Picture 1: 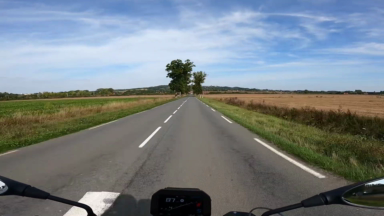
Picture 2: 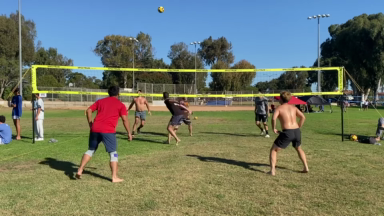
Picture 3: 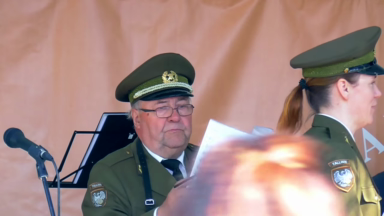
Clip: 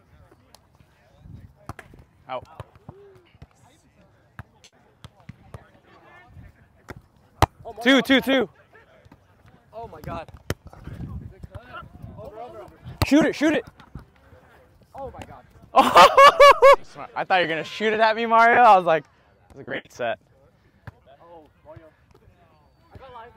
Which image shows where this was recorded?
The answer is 2